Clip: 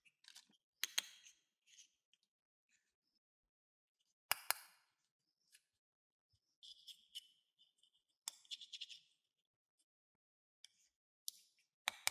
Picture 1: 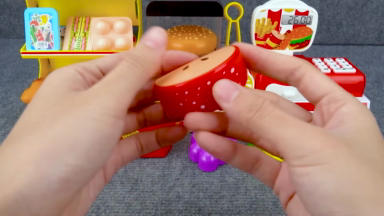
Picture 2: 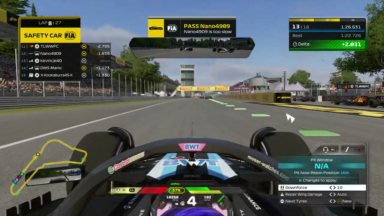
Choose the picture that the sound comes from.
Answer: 1